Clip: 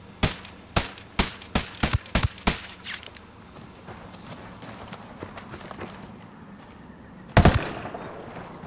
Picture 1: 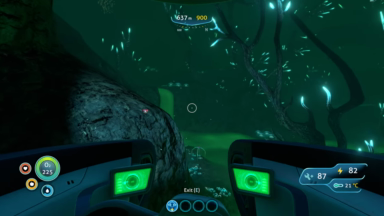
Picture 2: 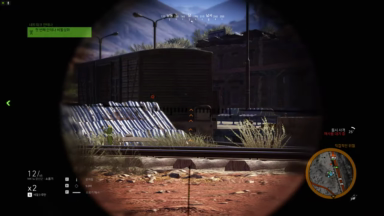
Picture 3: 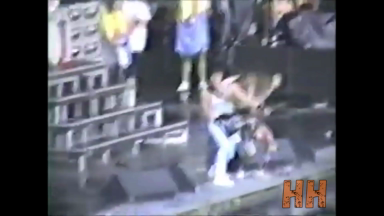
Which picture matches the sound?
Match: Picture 2